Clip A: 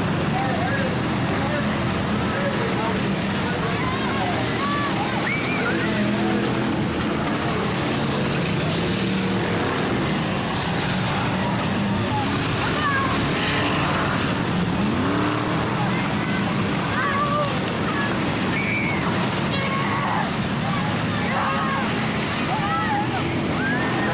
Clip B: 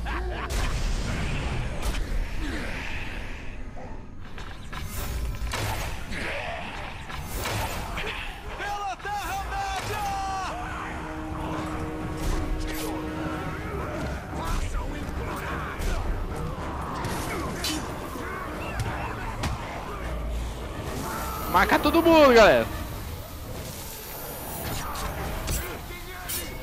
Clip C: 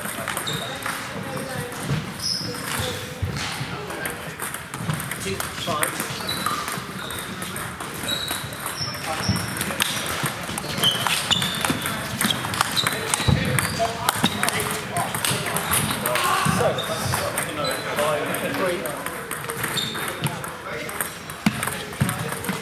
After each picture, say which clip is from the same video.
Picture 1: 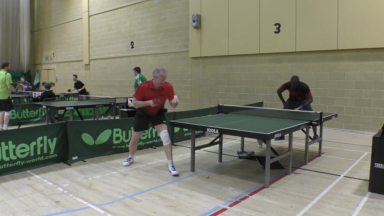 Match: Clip C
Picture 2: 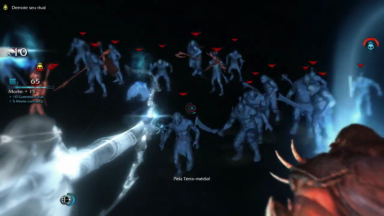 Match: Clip B